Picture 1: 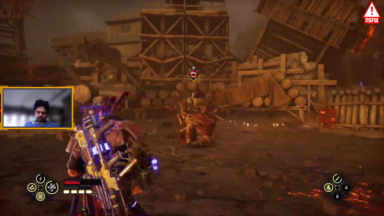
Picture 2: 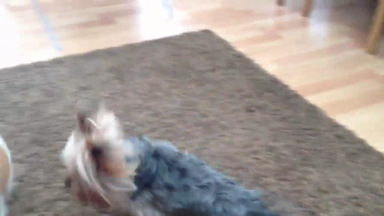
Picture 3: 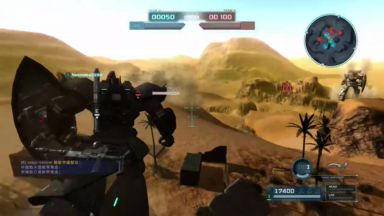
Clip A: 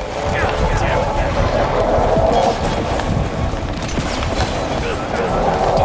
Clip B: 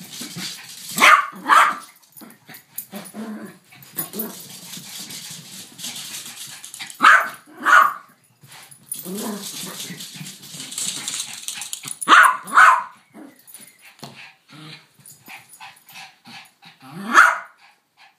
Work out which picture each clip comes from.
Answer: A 1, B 2